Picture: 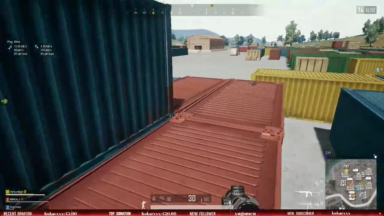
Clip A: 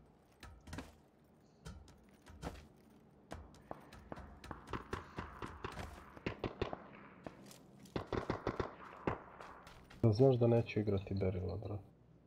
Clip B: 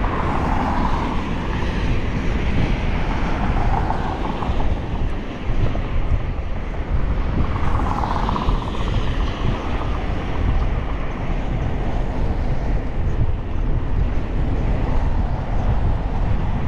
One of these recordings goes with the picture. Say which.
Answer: A